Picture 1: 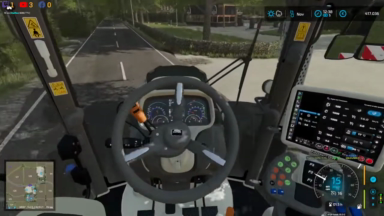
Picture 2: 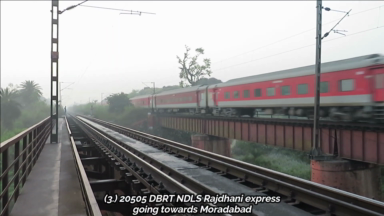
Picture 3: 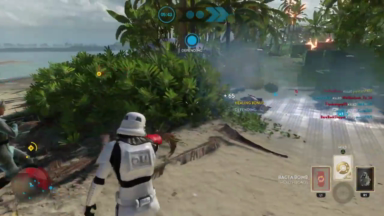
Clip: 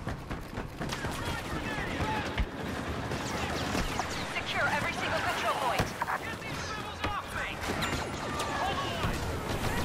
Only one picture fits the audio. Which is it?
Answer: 3